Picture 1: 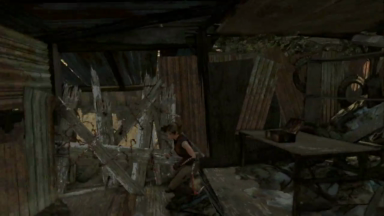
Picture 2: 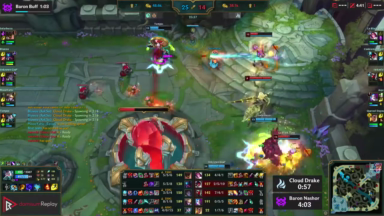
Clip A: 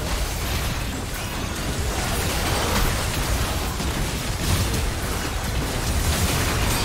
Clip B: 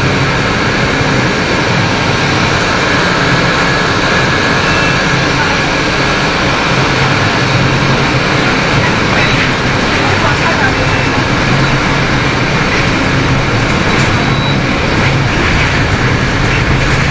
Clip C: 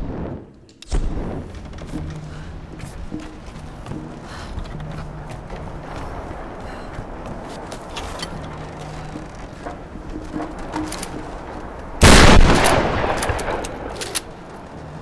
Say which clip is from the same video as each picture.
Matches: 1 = C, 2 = A